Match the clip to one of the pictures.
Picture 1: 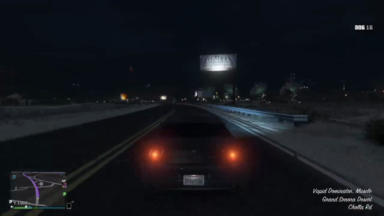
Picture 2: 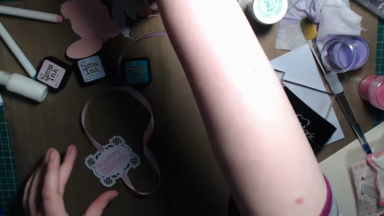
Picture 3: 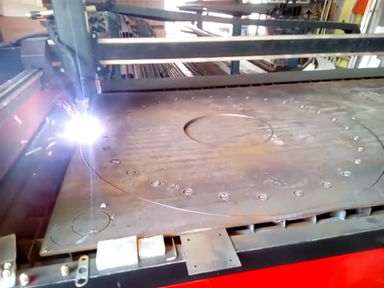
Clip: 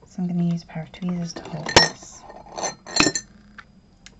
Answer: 2